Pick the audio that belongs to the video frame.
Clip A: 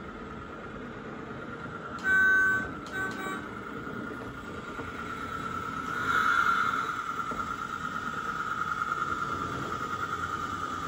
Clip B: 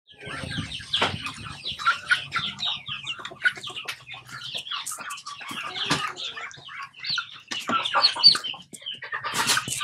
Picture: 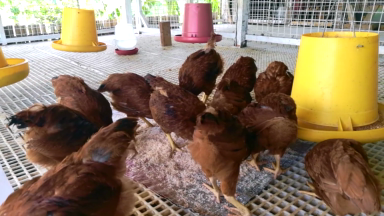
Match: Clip B